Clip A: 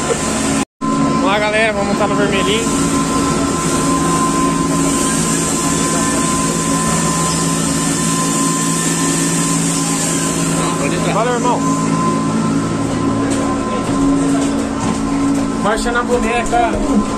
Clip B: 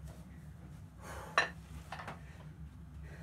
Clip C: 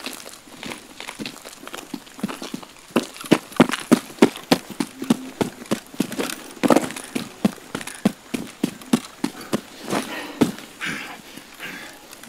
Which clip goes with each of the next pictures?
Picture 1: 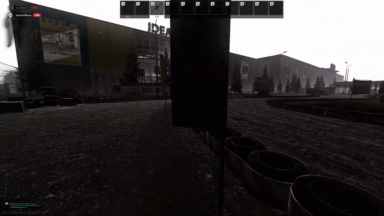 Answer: C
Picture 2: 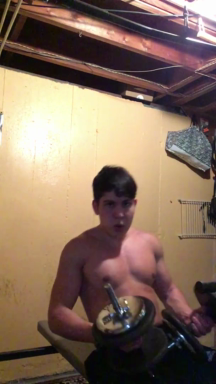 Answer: B